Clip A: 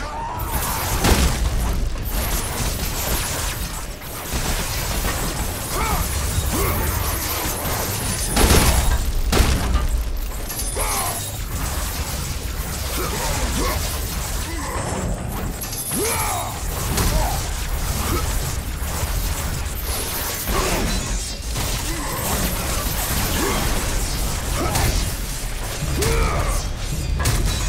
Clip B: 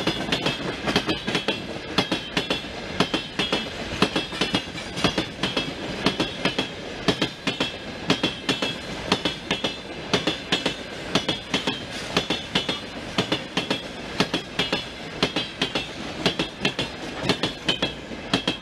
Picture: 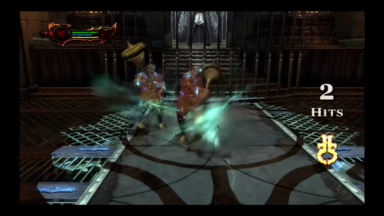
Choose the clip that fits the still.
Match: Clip A